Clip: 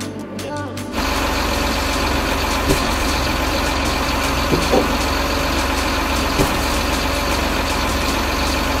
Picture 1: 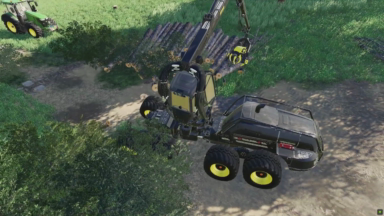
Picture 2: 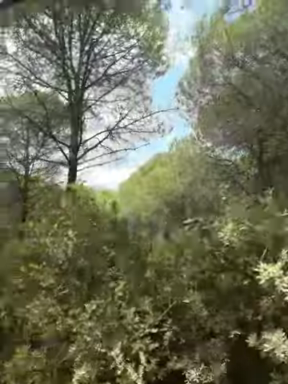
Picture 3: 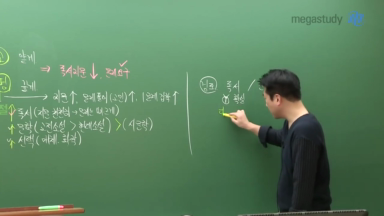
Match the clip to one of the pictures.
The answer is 1